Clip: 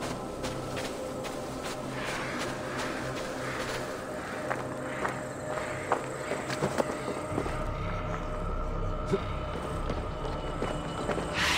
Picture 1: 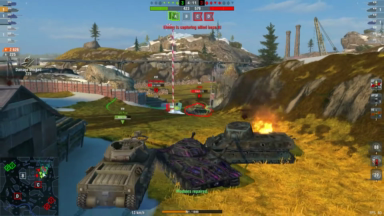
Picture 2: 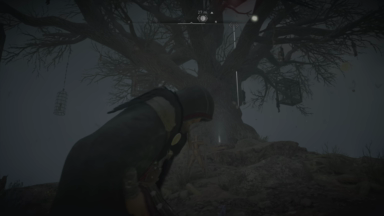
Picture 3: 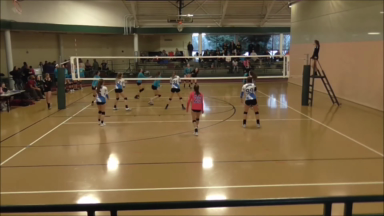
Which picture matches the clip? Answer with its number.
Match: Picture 2